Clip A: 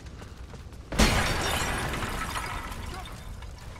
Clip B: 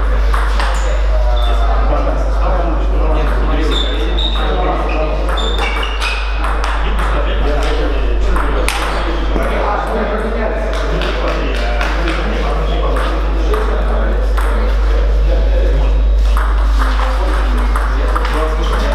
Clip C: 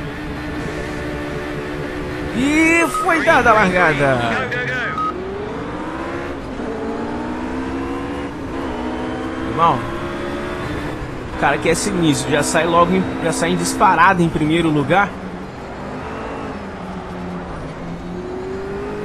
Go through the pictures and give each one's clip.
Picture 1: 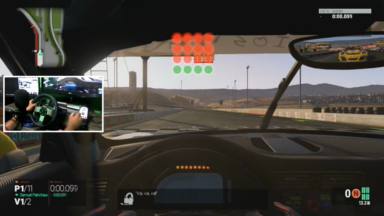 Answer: C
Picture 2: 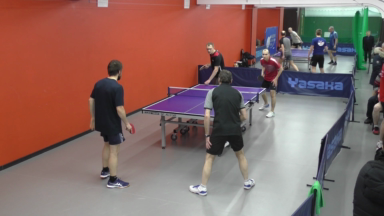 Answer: B